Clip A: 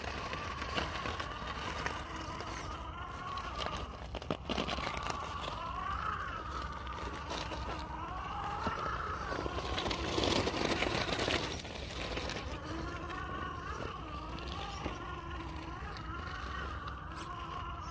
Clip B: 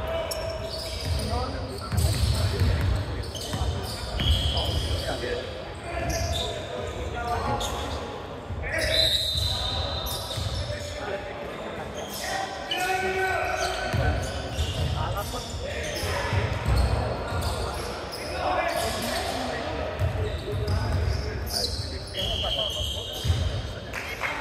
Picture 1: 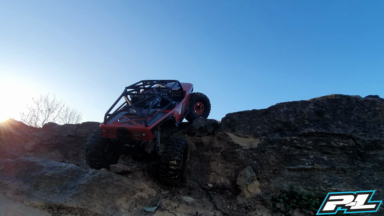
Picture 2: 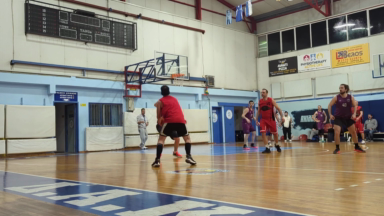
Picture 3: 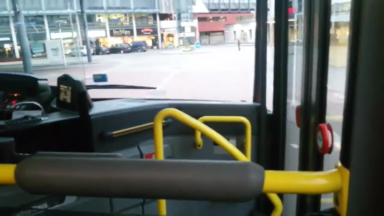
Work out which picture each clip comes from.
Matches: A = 1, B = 2